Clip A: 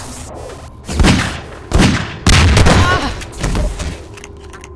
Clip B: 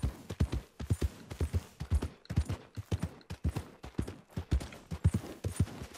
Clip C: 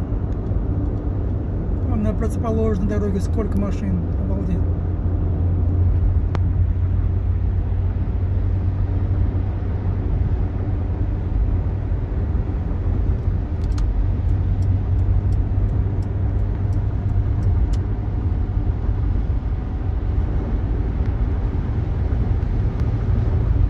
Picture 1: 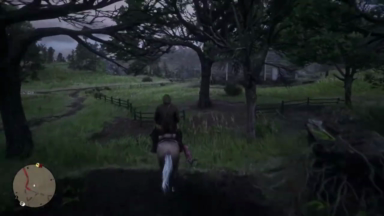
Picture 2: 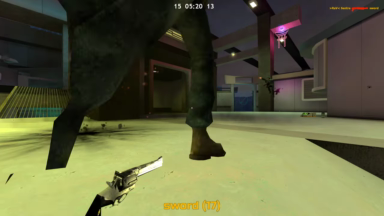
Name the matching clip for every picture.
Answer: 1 B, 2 A